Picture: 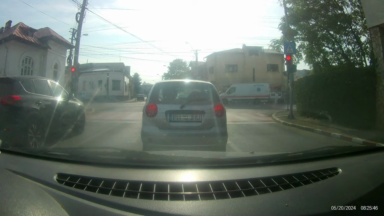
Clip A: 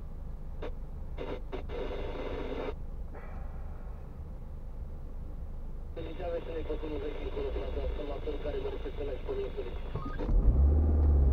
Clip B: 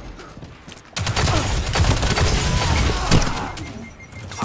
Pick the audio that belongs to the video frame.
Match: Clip A